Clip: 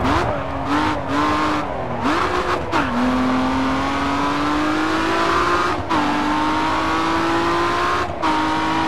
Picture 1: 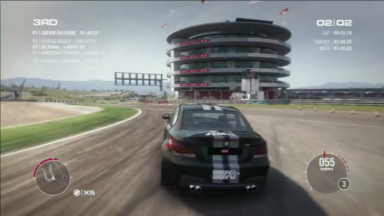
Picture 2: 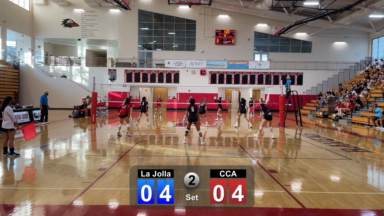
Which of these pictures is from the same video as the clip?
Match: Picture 1